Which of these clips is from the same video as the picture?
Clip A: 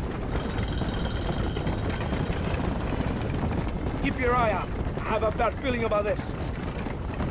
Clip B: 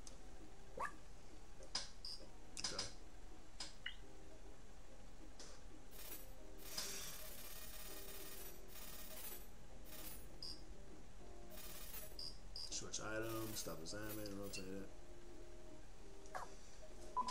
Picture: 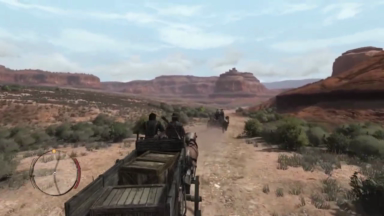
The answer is A